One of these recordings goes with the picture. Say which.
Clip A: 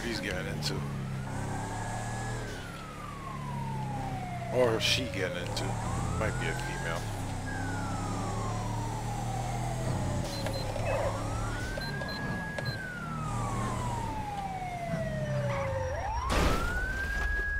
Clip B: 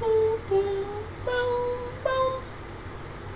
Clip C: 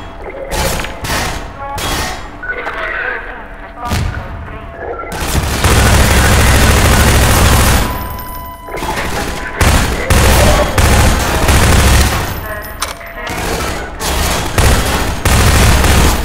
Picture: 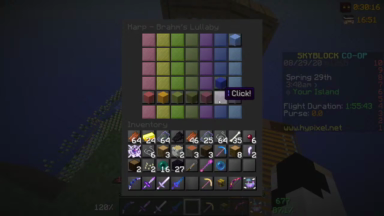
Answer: B